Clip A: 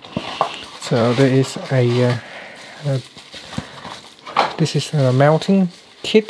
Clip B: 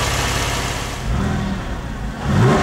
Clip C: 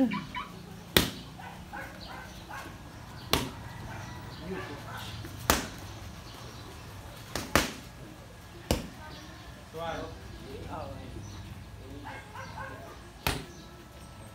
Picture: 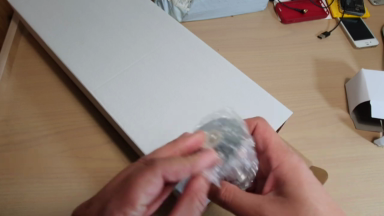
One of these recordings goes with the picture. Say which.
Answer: A